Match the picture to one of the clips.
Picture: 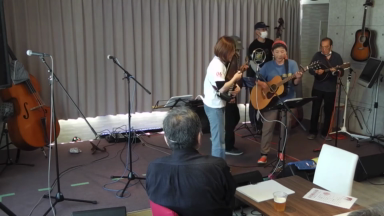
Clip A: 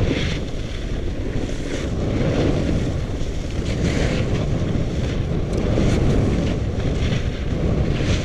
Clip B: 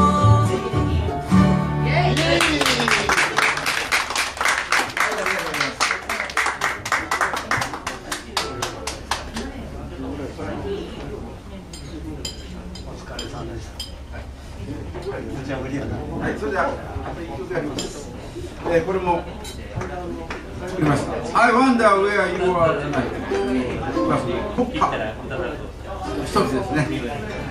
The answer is B